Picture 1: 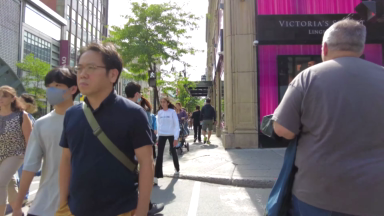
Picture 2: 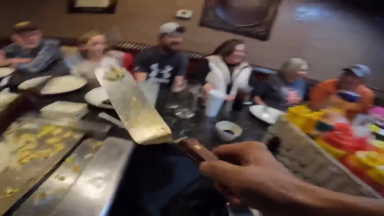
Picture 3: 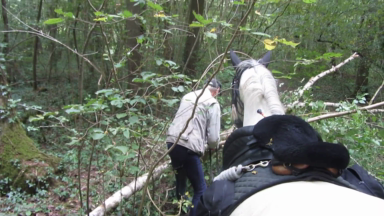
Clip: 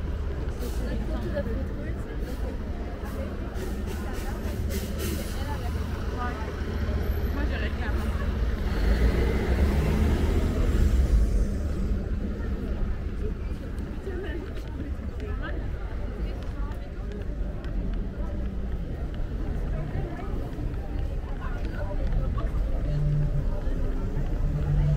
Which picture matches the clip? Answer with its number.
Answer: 1